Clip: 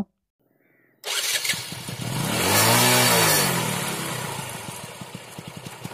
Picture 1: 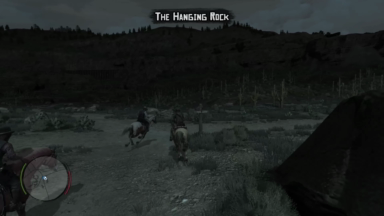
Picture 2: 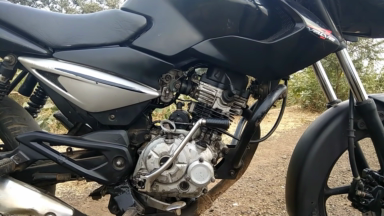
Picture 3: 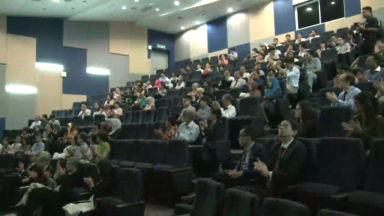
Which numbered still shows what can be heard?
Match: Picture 2